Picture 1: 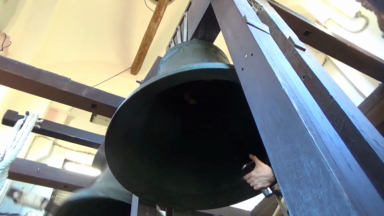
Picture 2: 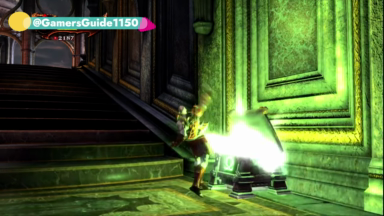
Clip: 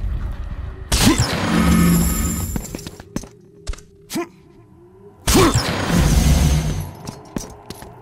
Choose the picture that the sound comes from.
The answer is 2